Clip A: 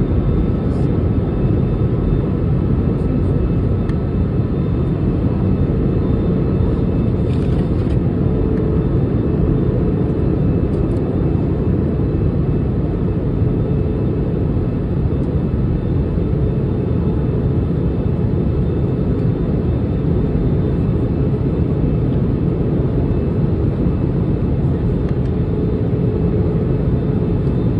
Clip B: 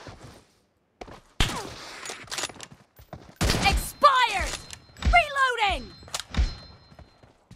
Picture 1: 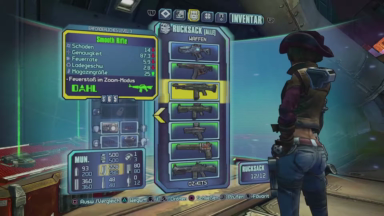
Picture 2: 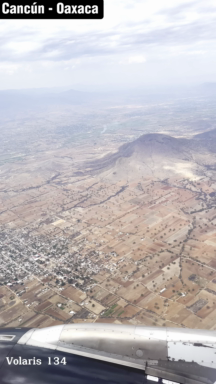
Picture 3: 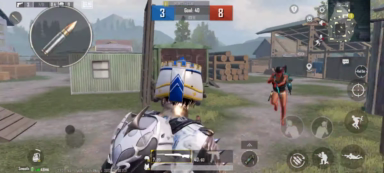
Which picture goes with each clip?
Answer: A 2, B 3